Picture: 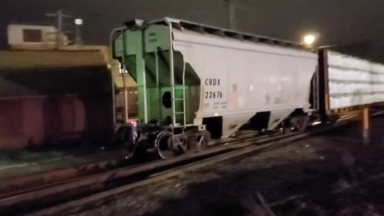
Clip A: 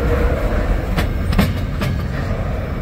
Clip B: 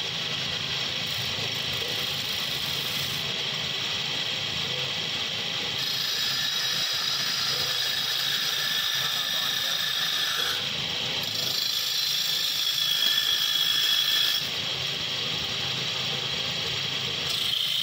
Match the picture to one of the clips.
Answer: A